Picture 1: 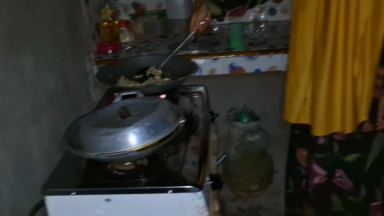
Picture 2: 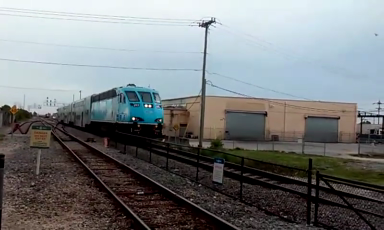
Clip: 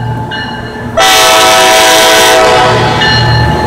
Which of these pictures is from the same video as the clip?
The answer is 2